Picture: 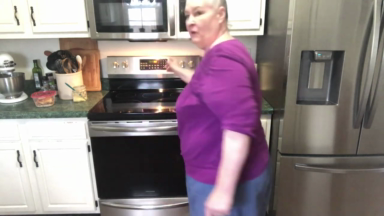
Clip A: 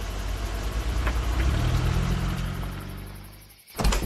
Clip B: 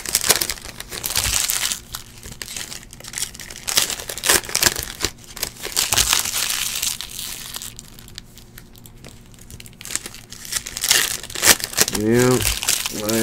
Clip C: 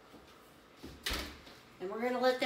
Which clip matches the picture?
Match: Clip C